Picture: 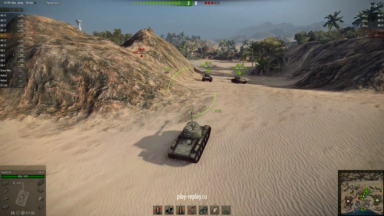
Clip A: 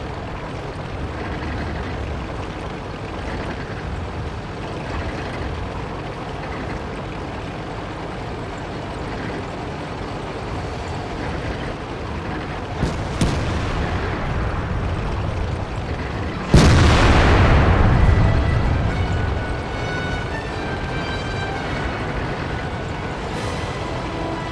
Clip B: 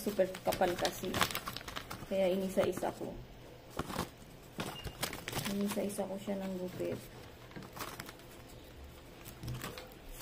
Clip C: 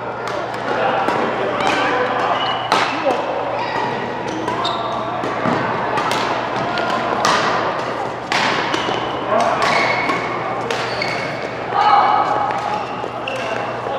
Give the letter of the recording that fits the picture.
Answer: A